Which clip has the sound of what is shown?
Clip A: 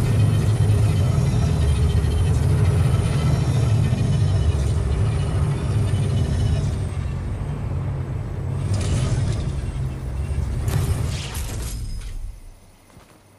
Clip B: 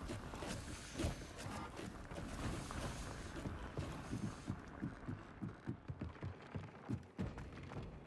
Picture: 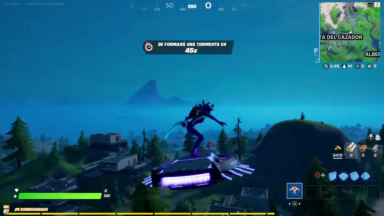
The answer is A